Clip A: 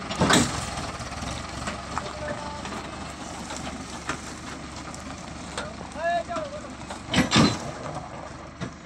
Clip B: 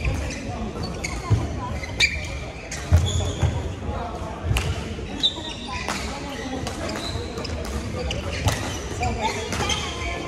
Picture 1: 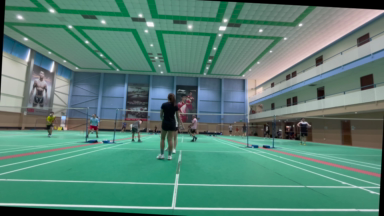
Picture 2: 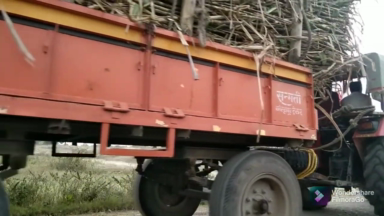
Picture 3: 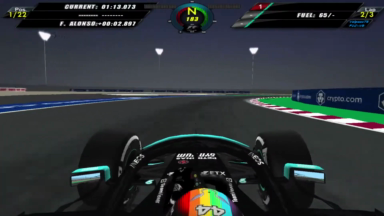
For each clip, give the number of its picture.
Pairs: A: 2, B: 1